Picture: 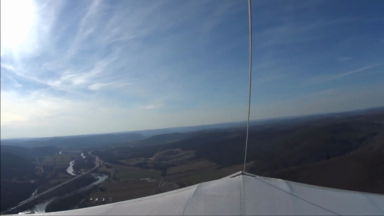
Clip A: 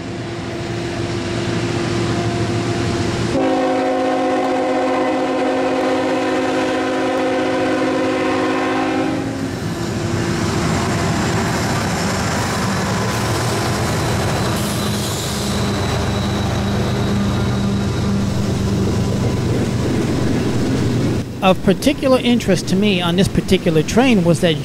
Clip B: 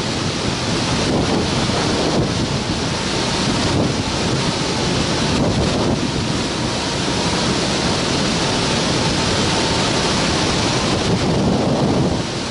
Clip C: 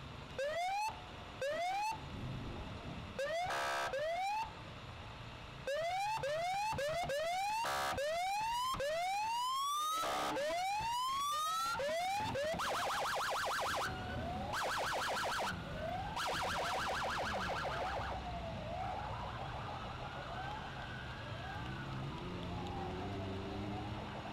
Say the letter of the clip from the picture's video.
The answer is B